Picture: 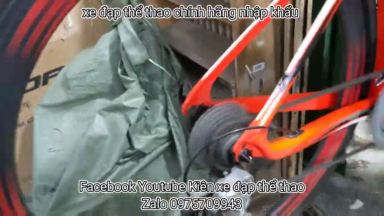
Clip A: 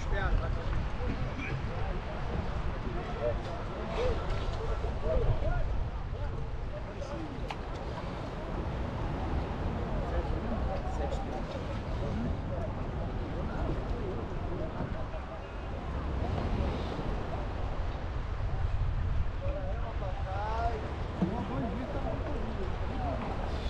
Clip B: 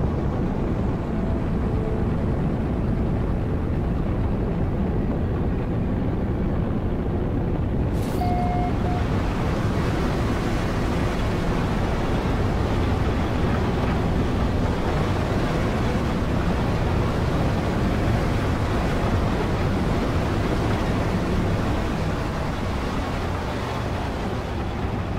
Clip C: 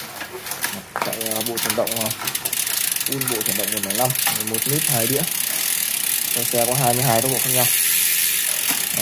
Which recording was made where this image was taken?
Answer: C